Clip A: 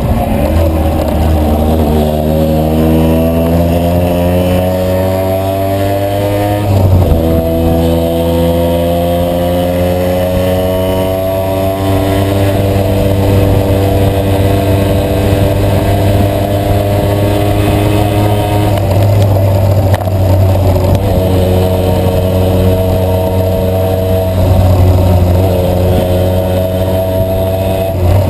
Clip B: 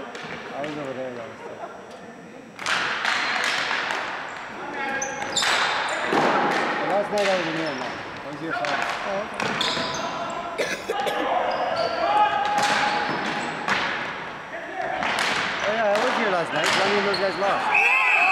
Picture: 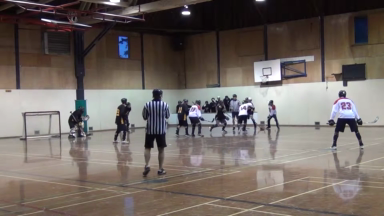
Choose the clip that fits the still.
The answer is B